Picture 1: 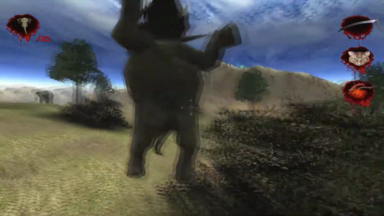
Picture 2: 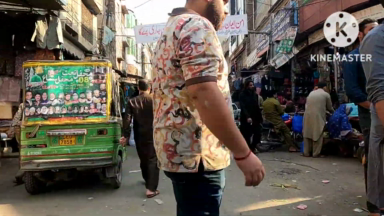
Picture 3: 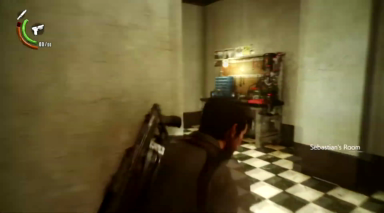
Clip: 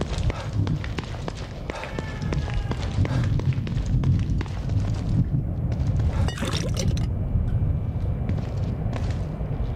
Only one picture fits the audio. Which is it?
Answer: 3